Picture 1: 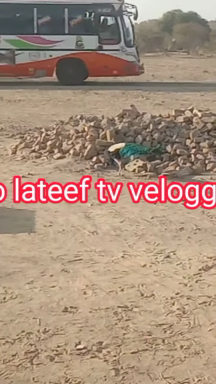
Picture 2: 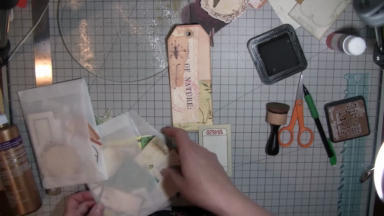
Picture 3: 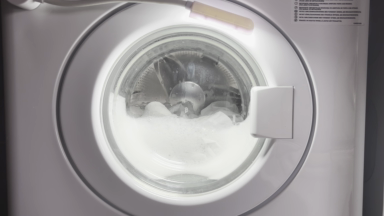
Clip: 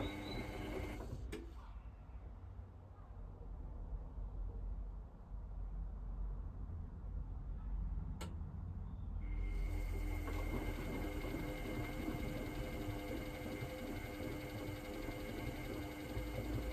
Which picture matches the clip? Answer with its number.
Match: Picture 3